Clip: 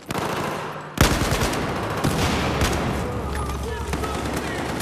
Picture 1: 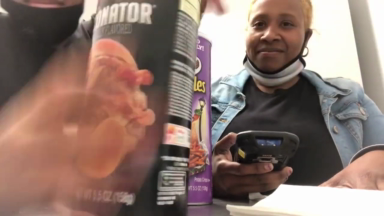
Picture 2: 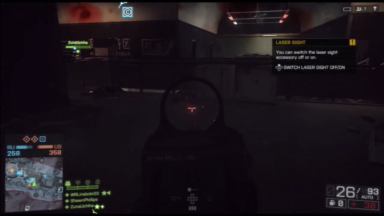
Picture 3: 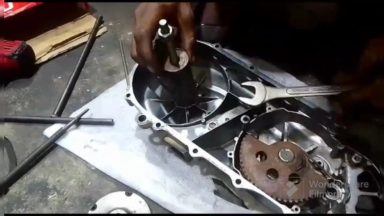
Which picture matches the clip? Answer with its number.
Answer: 2